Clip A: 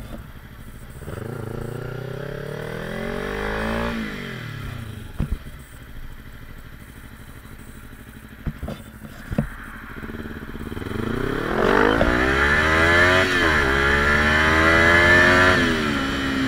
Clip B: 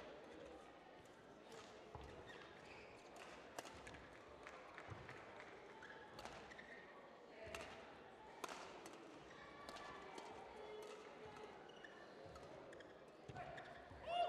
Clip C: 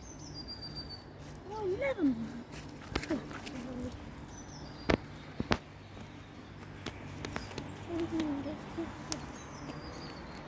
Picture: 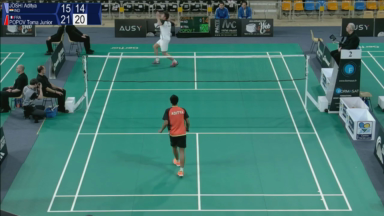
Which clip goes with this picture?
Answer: B